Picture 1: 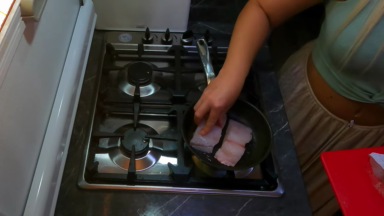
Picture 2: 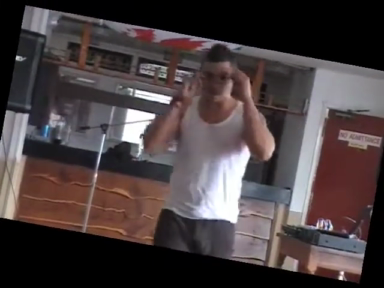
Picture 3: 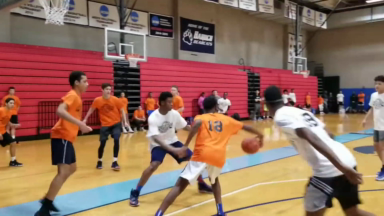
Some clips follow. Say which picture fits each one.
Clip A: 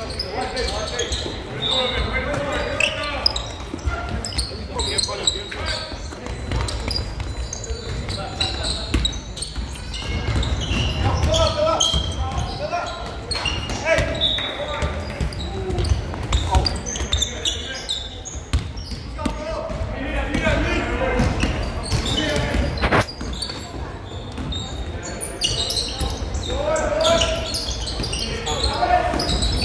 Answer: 3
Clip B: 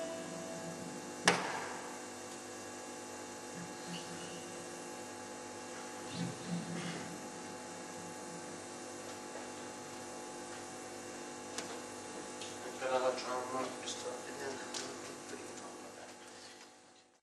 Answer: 2